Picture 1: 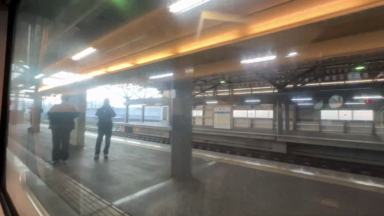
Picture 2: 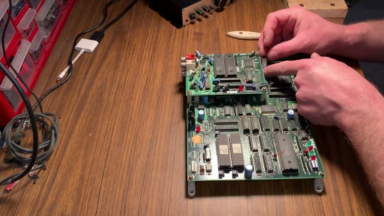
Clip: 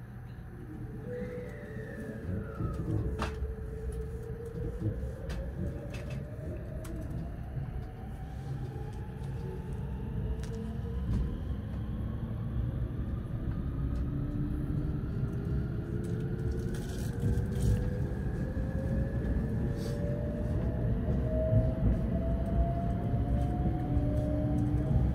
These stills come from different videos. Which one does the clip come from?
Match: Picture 1